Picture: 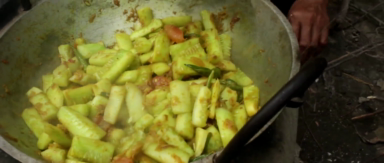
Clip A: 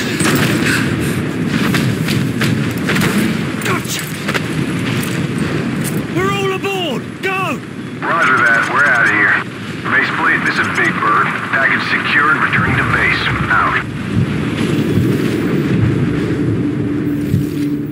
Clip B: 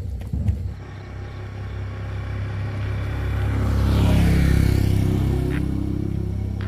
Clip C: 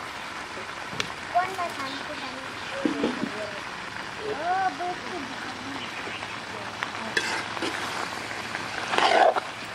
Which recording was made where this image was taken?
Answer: C